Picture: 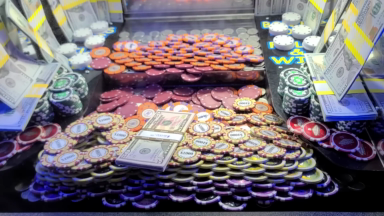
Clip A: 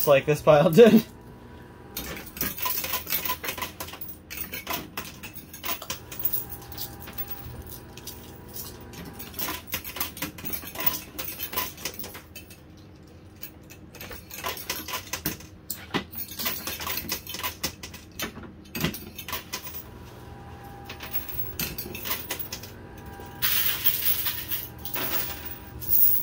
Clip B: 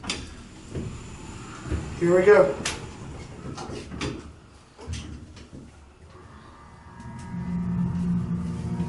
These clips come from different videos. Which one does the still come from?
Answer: A